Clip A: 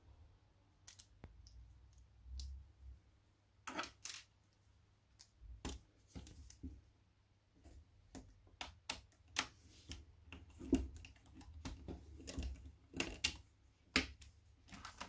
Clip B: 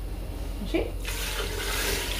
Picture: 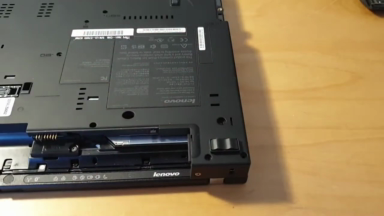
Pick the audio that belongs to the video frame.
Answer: A